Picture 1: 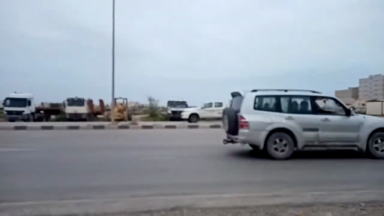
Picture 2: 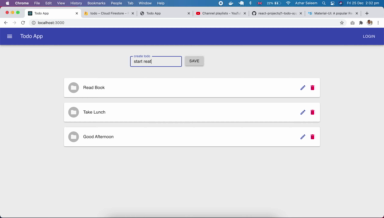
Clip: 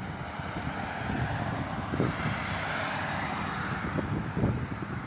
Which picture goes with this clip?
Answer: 1